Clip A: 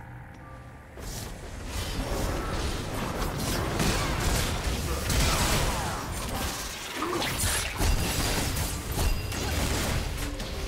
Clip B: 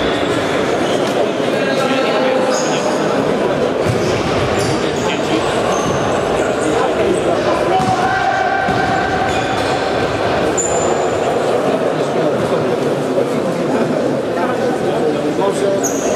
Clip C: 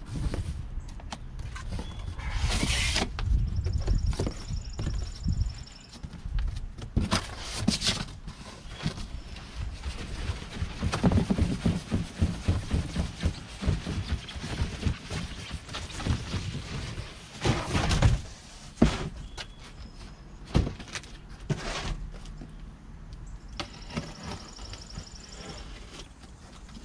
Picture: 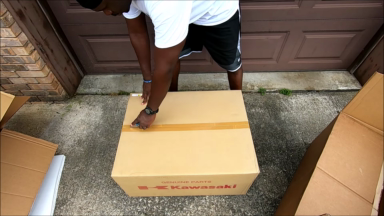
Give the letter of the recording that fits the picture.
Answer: C